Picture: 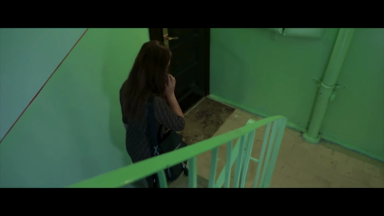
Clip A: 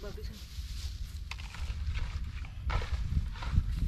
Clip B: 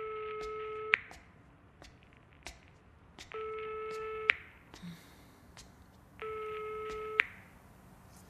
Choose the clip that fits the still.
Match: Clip B